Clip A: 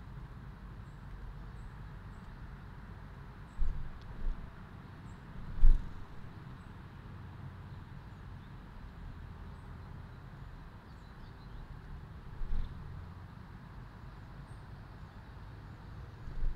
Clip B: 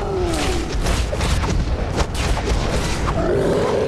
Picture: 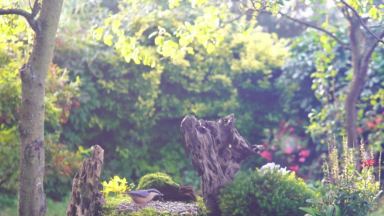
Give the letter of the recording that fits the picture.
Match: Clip A